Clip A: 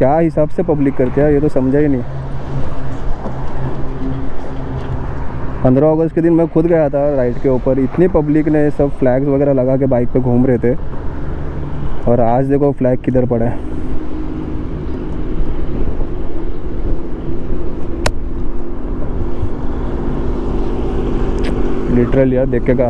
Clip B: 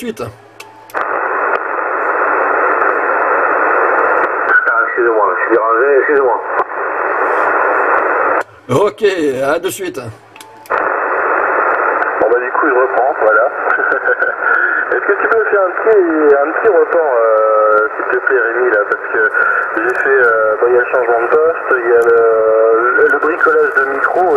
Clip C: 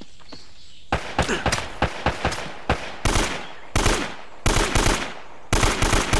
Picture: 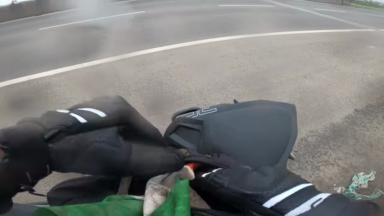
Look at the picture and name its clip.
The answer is A